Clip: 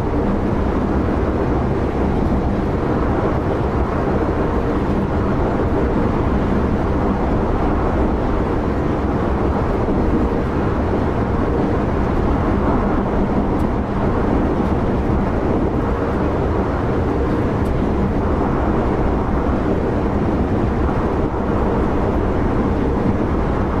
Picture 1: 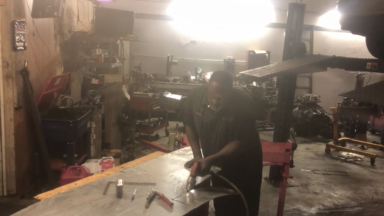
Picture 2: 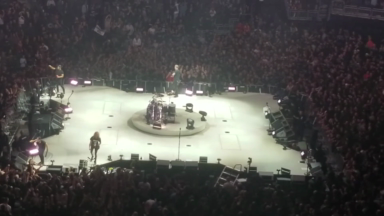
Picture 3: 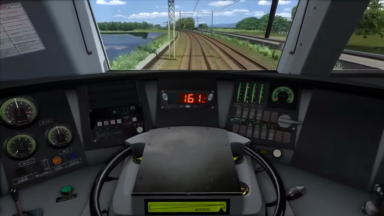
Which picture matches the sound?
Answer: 3